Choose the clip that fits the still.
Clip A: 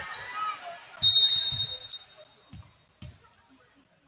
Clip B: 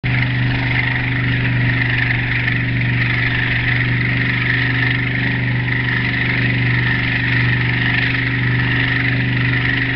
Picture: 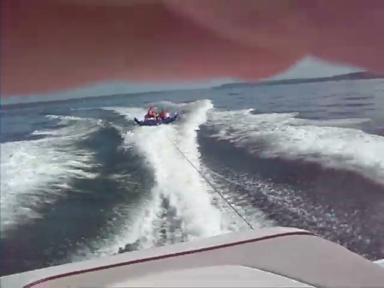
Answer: B